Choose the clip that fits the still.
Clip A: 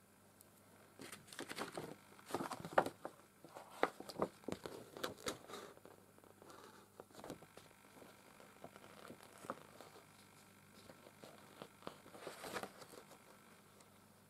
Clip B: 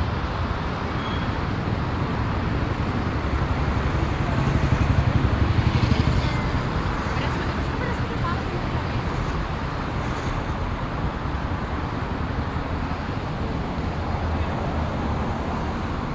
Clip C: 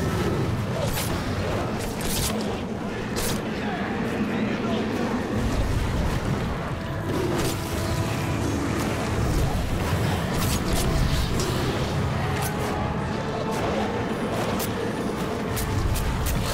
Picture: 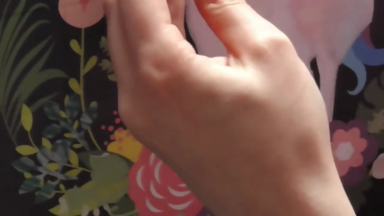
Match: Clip A